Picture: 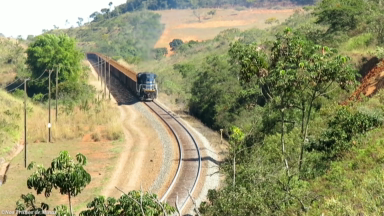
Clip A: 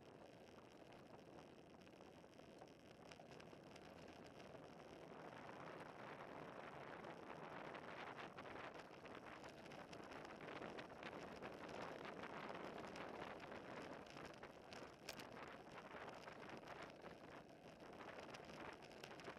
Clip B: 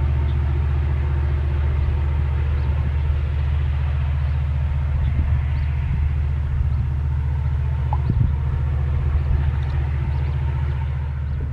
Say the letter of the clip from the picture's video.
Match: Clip B